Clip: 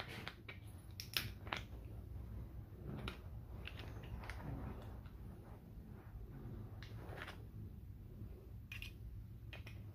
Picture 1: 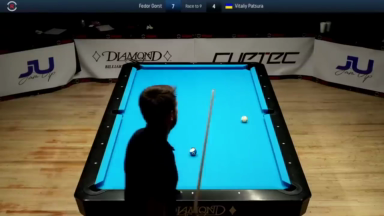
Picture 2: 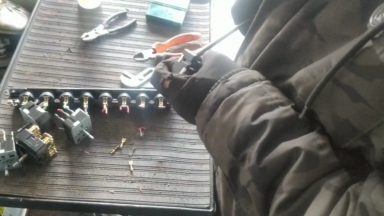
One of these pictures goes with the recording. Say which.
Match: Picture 2